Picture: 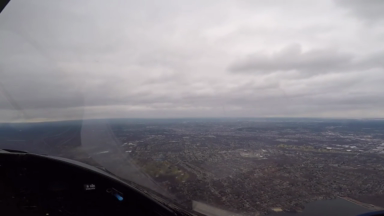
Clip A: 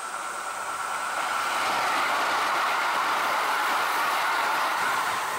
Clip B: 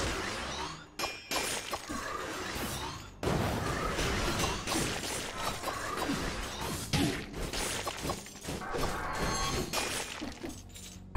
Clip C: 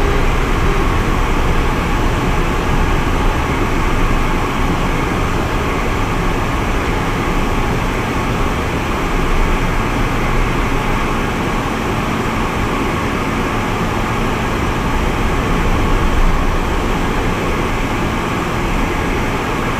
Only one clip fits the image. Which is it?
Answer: C